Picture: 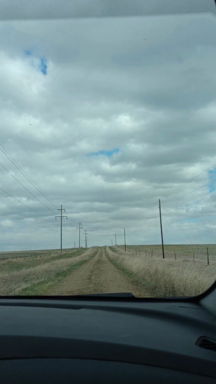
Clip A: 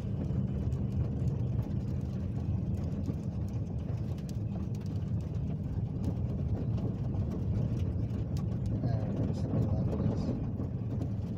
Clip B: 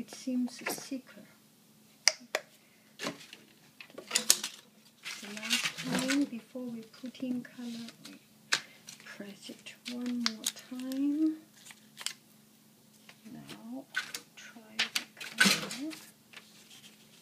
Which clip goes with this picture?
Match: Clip A